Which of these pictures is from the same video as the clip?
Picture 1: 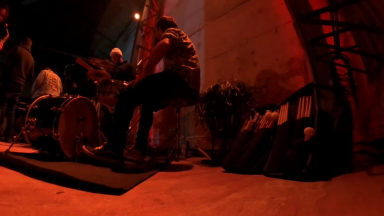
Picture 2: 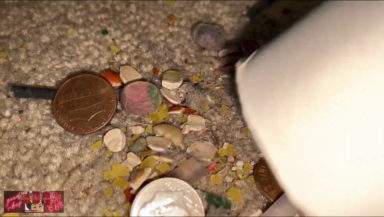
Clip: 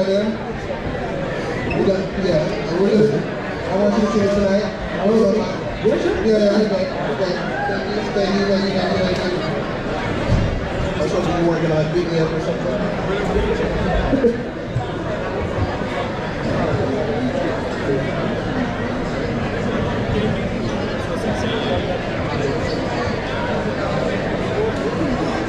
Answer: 1